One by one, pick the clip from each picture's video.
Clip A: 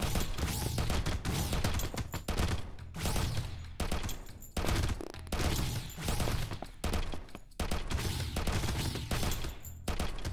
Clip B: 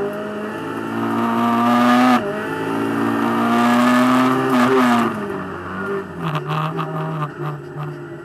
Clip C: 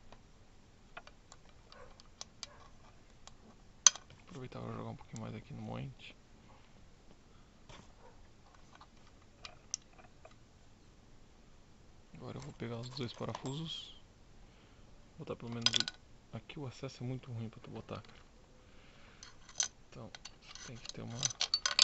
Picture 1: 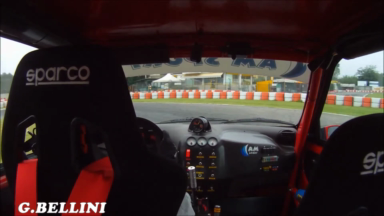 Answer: B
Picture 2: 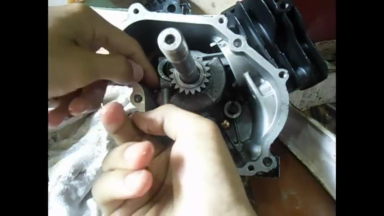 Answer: C